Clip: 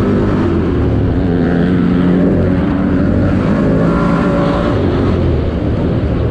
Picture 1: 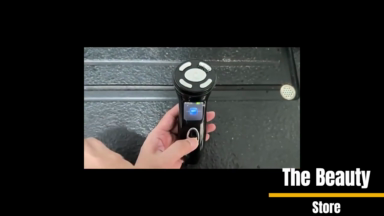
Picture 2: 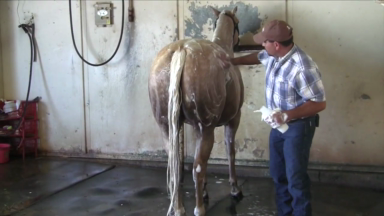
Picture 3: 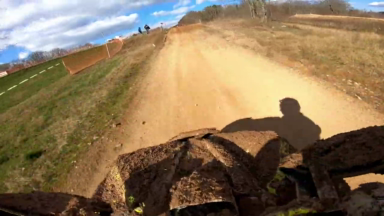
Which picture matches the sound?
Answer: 3